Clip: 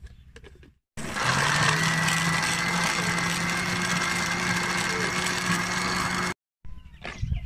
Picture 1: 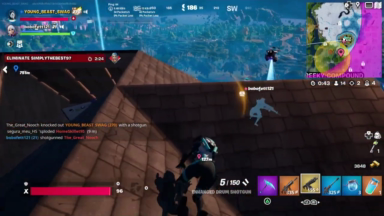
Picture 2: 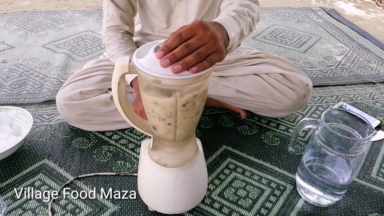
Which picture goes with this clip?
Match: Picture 2